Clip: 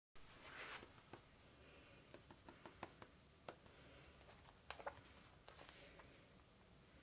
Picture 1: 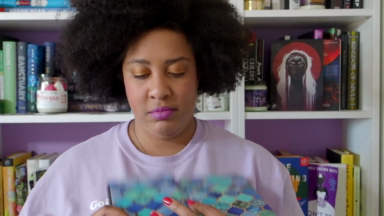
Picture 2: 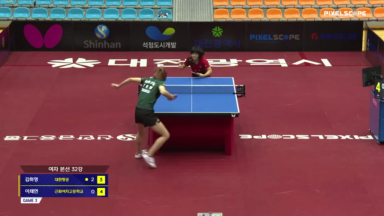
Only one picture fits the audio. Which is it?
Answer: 1